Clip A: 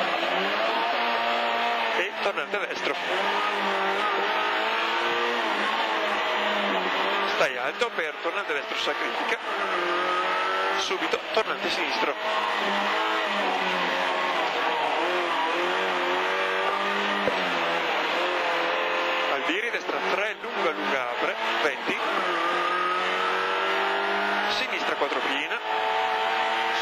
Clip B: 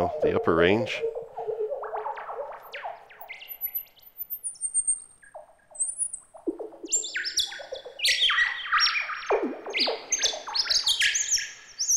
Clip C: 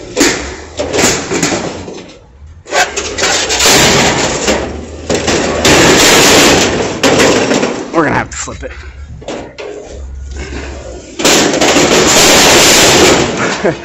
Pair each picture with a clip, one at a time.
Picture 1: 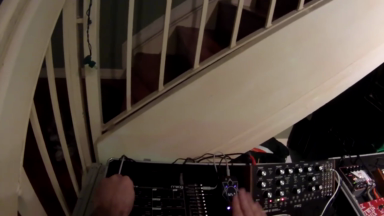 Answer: B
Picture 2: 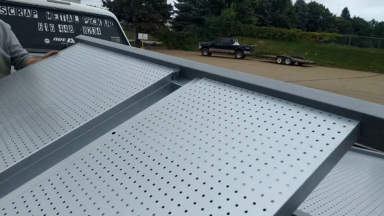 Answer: C